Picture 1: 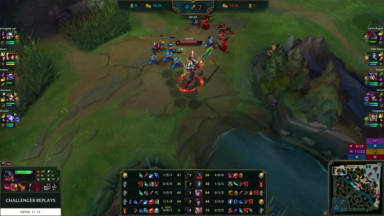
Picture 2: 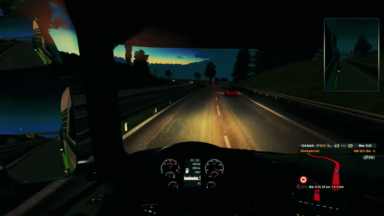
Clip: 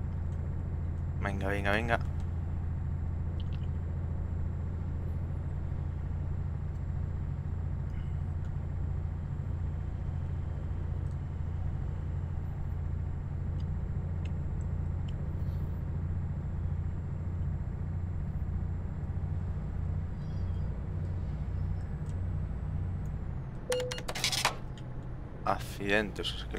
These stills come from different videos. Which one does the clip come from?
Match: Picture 2